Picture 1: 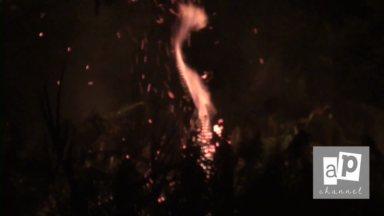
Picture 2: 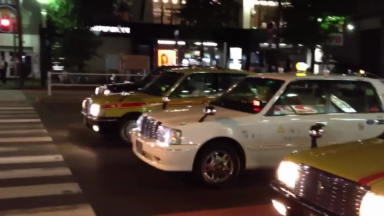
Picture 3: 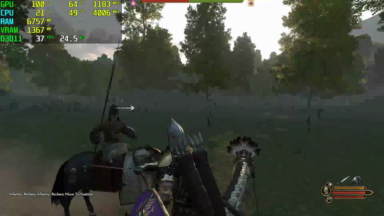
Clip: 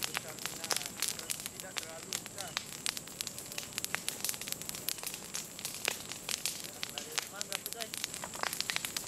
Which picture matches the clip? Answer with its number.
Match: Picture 1